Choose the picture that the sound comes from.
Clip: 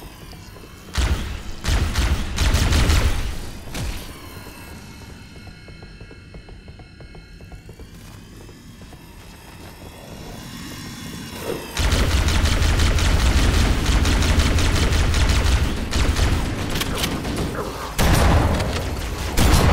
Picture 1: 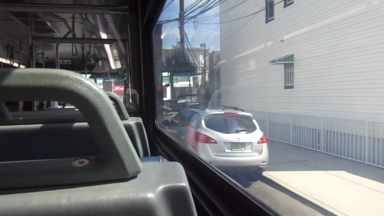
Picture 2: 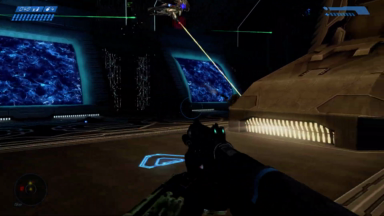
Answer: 2